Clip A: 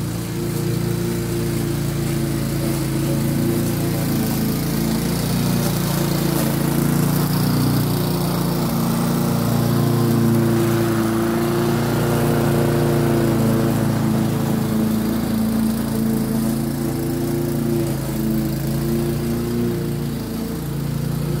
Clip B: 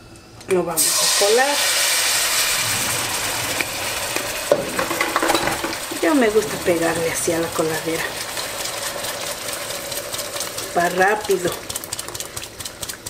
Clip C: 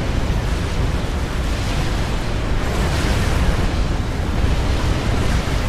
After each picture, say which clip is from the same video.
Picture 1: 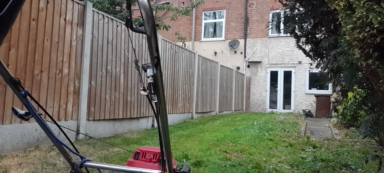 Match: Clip A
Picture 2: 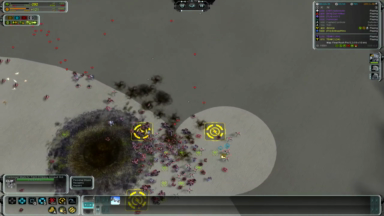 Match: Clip C